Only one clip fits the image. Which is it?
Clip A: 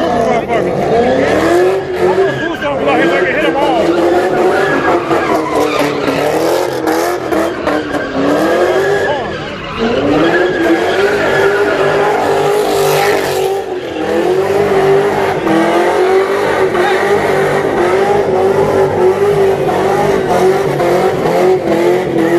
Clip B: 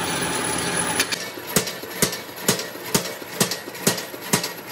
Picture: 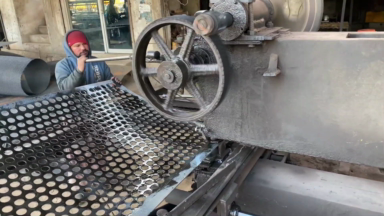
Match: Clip B